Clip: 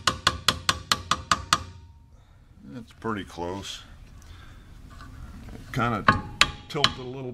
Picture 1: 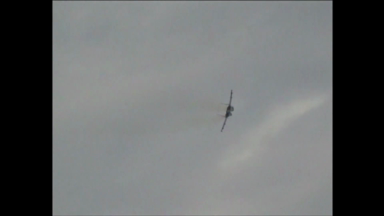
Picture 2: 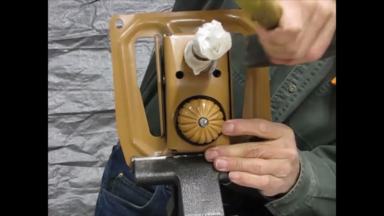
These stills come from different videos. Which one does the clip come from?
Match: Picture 2